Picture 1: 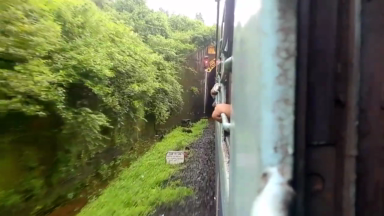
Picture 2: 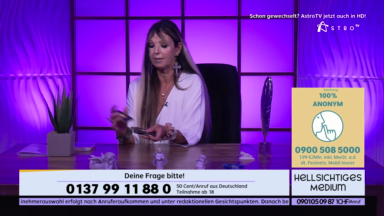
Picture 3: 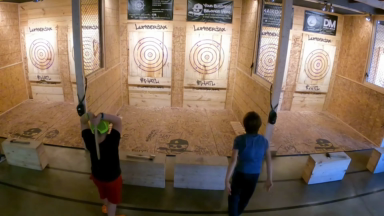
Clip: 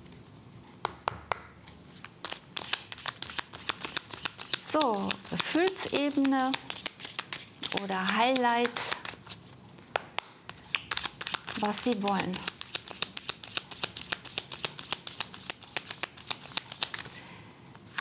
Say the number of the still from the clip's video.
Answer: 2